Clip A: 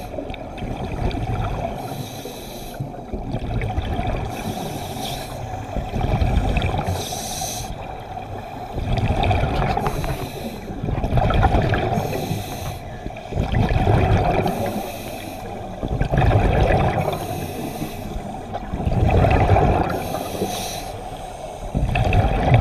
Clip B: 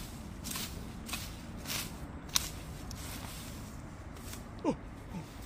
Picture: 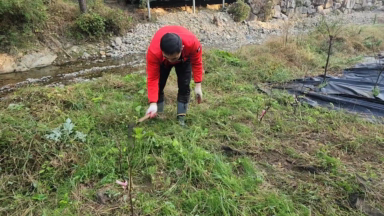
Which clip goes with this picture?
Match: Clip B